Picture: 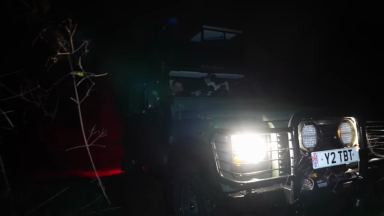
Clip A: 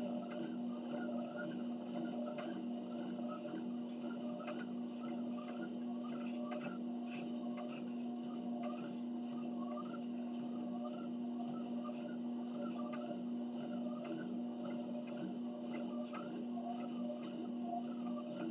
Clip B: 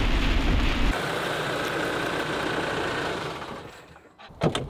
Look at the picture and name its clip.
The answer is B